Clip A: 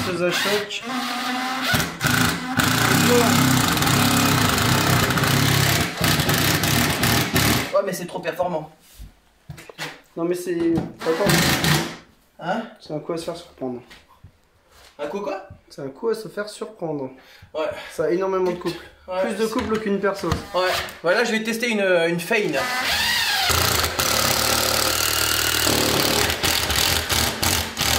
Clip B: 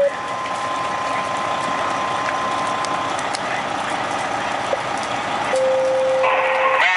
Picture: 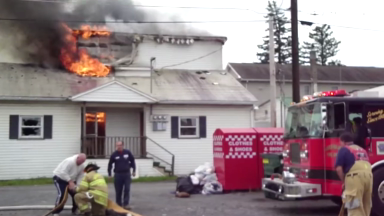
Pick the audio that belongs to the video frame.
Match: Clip B